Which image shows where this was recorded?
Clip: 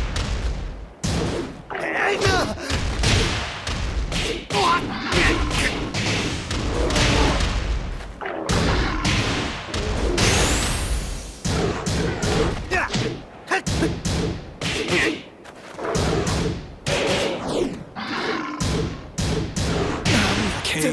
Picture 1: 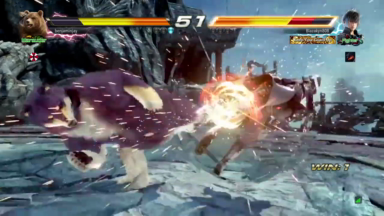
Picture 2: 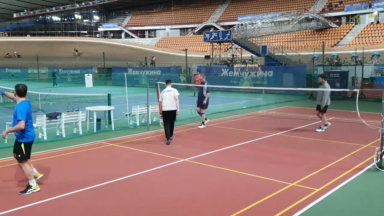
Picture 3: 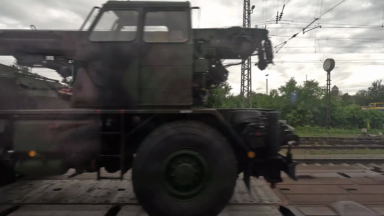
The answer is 1